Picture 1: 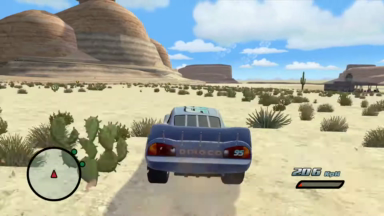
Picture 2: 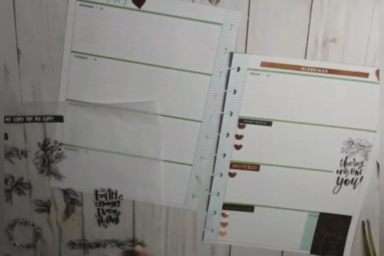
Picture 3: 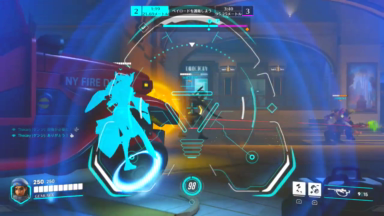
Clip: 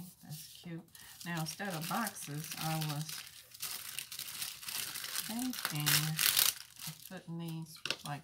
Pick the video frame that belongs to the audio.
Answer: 2